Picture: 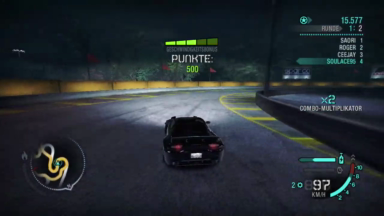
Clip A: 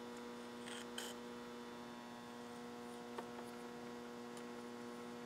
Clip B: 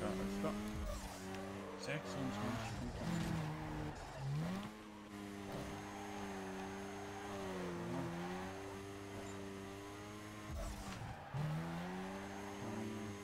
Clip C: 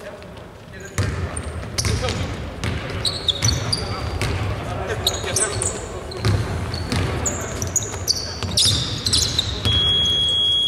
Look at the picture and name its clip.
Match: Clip B